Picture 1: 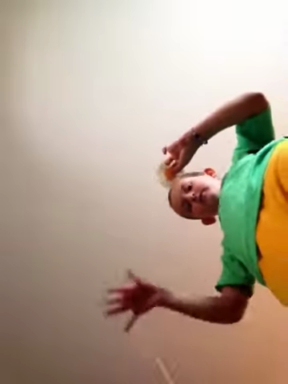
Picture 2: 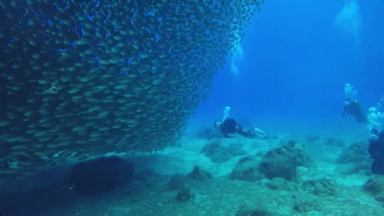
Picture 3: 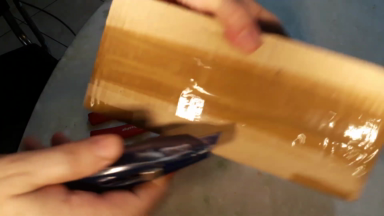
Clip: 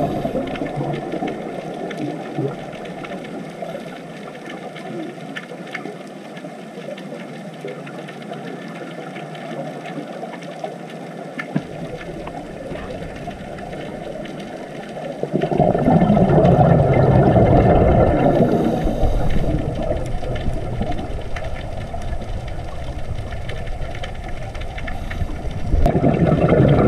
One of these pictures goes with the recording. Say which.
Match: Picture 2